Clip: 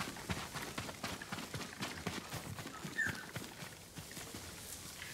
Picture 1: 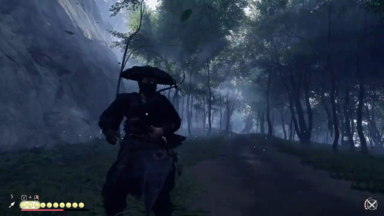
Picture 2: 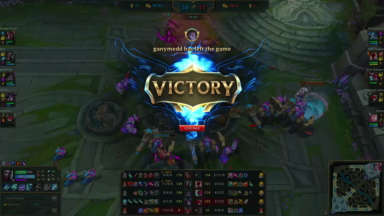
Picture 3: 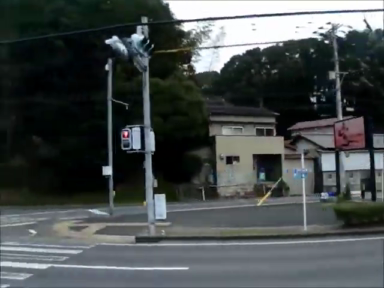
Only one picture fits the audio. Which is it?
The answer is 1